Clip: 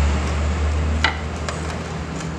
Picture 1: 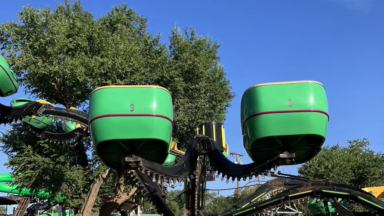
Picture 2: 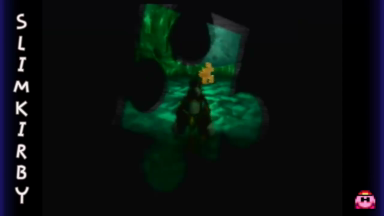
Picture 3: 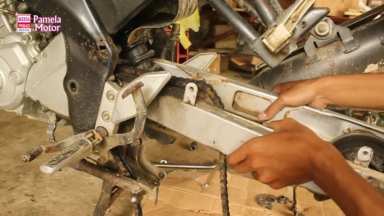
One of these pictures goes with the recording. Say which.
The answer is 3